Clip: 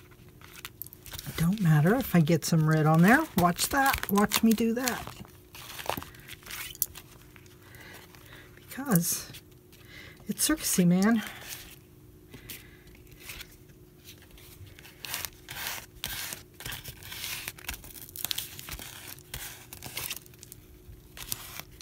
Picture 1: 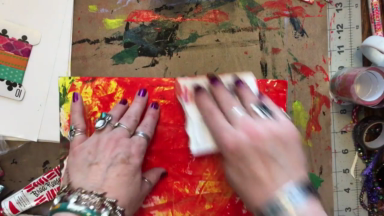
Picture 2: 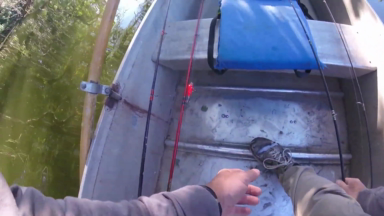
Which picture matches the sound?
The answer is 1